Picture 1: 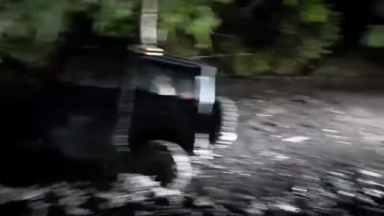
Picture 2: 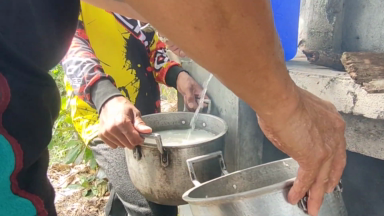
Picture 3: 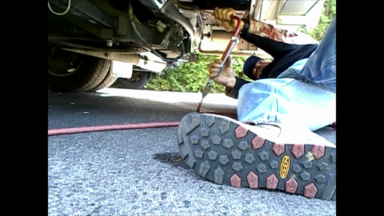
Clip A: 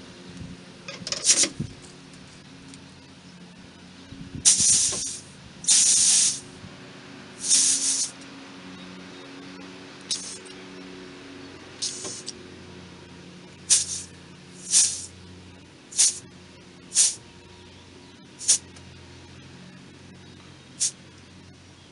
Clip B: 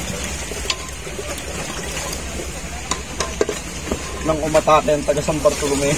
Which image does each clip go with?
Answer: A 3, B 2